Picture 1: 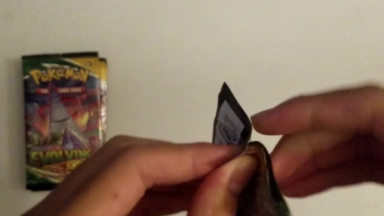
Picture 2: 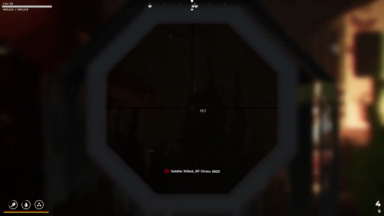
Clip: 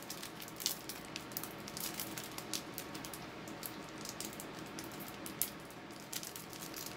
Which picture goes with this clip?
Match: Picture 1